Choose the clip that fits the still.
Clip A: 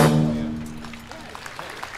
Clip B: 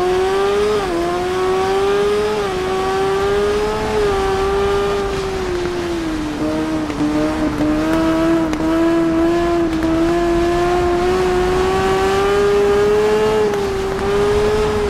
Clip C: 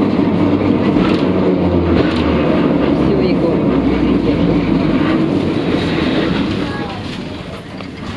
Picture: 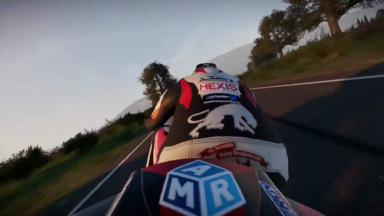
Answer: B